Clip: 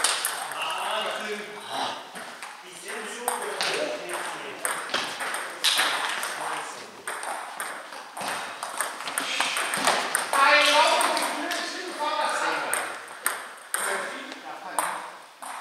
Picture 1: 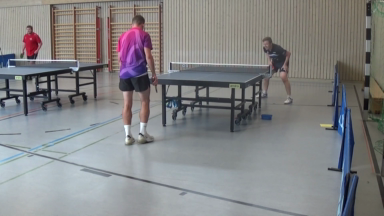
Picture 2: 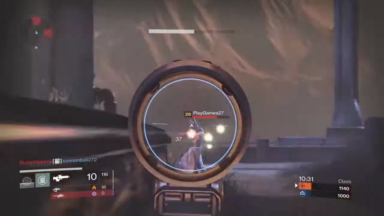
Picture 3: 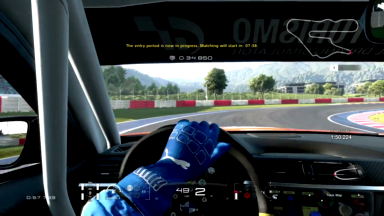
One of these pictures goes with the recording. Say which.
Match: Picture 1